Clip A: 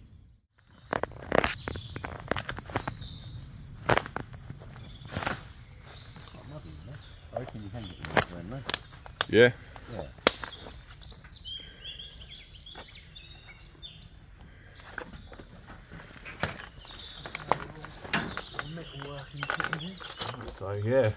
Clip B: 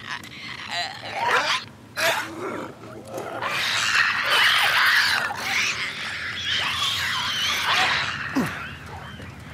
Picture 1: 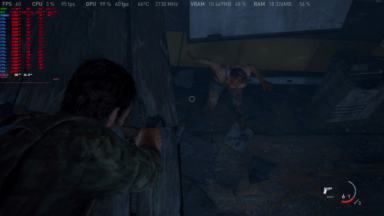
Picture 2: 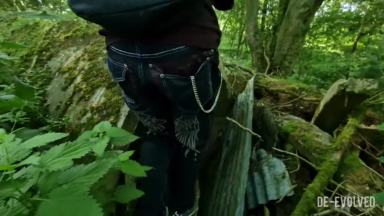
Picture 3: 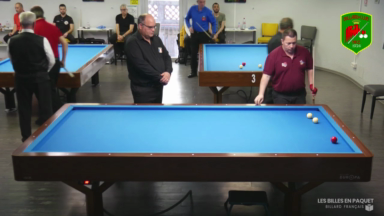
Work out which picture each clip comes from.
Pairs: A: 2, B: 1